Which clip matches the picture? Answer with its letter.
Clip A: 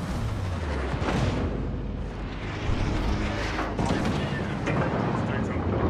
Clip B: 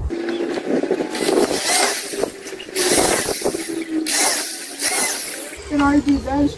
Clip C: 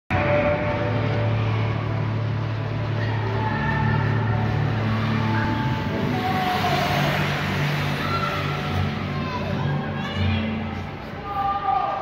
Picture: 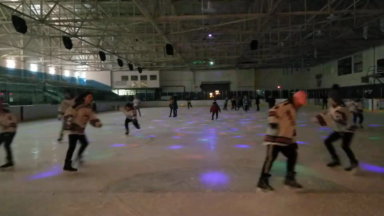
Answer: C